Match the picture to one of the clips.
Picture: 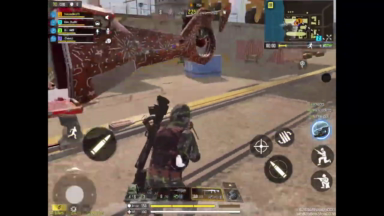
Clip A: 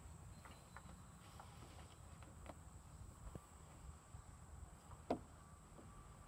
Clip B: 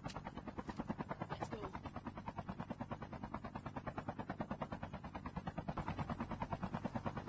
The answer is B